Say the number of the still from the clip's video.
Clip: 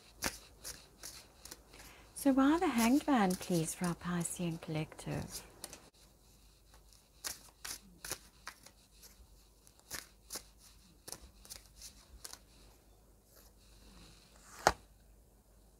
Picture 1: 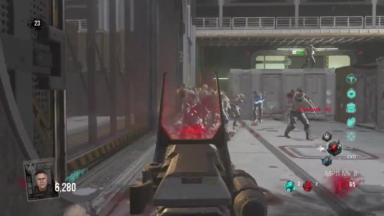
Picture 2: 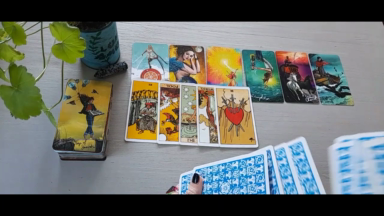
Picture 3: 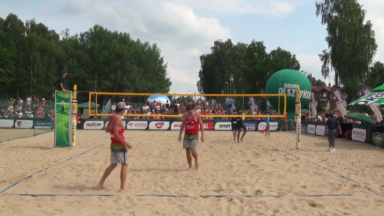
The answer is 2